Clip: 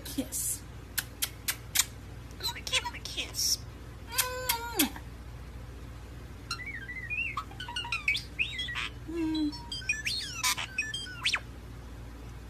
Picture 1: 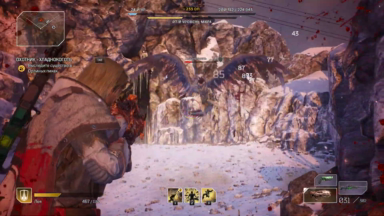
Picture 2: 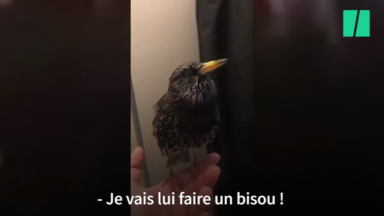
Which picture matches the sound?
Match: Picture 2